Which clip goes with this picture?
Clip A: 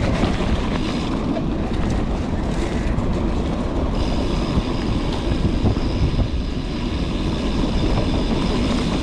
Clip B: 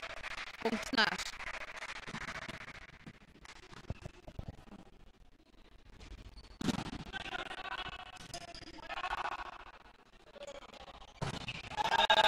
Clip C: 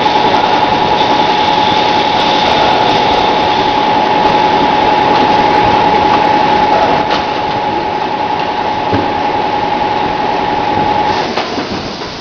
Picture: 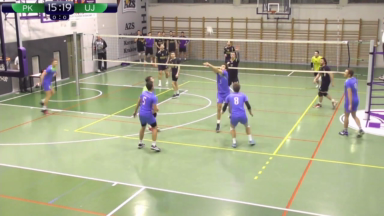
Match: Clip B